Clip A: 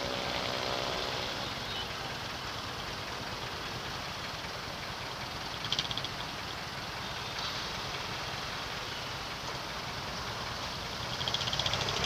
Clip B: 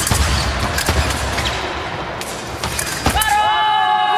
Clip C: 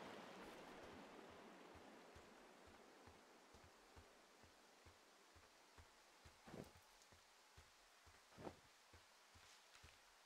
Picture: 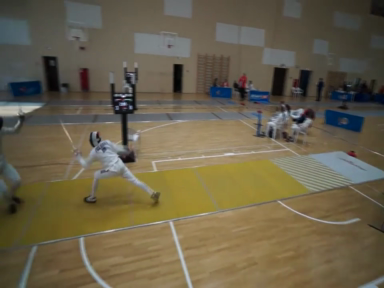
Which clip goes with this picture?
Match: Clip B